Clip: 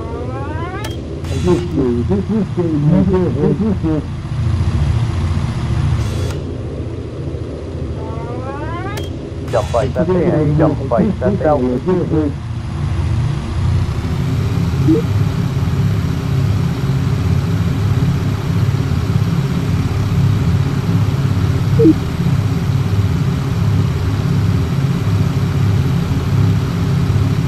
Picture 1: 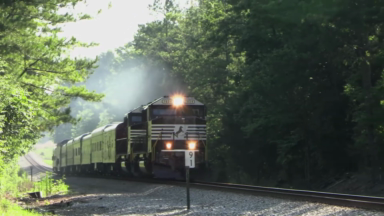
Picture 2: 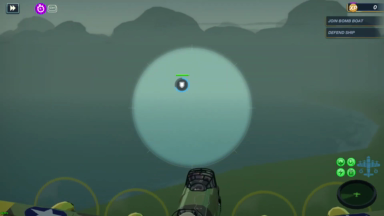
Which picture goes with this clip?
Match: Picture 2